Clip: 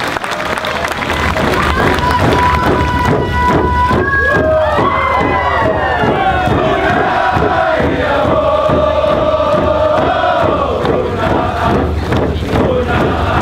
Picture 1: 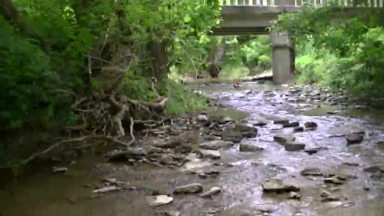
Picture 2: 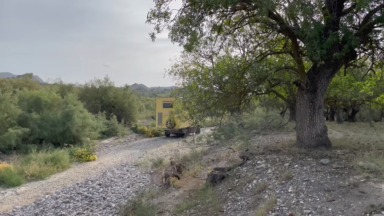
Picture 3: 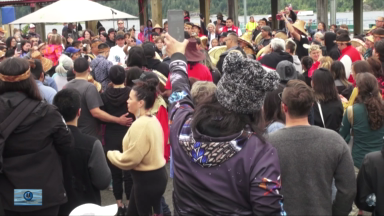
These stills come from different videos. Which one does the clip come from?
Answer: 3